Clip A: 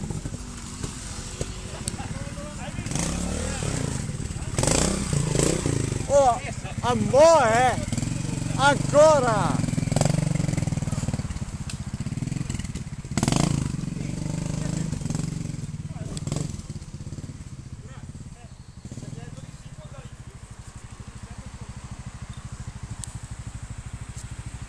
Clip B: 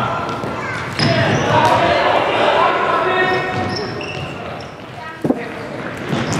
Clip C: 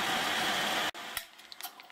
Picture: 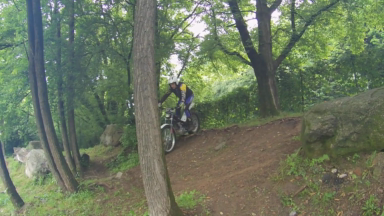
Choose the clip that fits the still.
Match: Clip A